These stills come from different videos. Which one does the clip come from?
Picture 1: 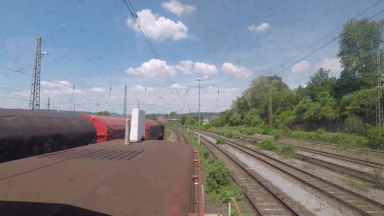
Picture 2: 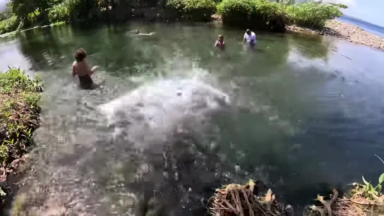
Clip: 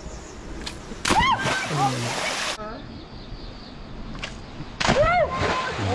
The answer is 2